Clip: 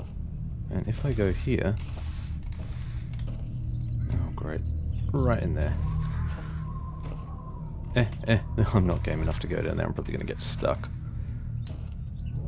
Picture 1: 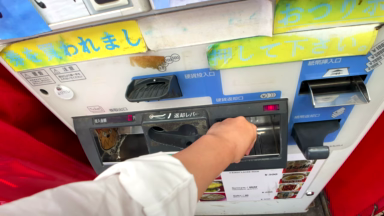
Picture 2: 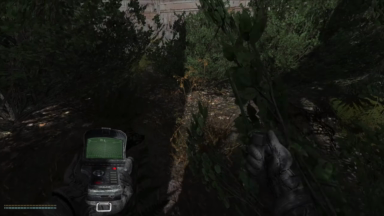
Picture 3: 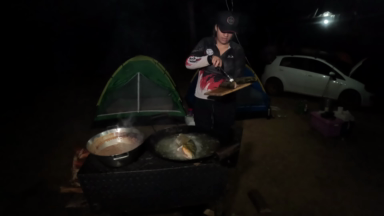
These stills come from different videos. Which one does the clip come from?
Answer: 2